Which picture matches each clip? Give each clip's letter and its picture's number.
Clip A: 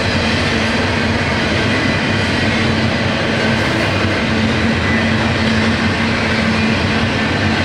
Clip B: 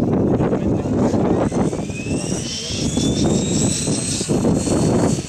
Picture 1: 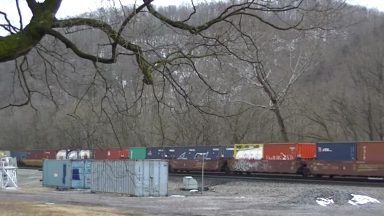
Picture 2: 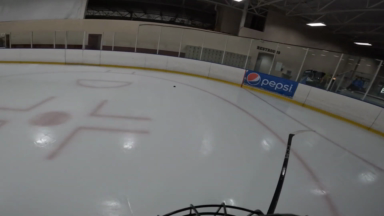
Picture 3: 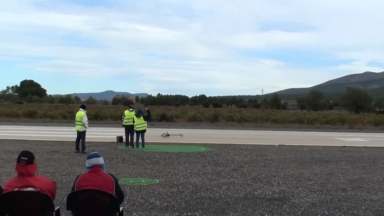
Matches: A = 1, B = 3